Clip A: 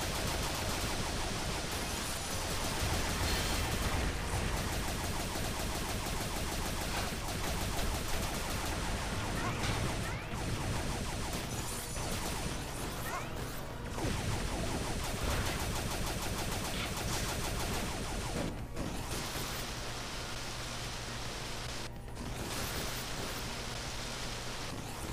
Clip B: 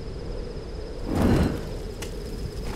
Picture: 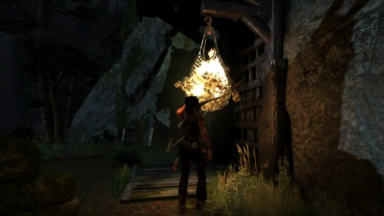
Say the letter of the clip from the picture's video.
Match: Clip B